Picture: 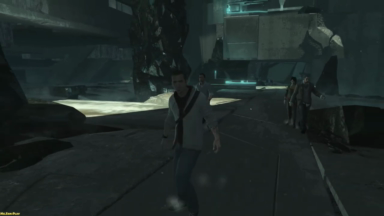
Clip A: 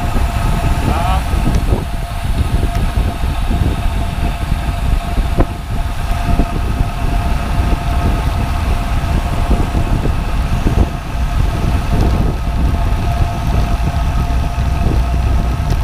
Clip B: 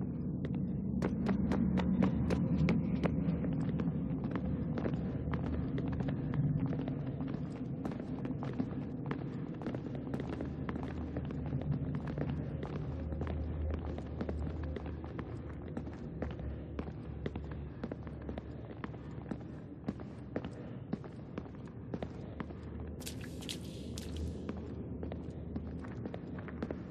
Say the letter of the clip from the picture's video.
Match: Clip B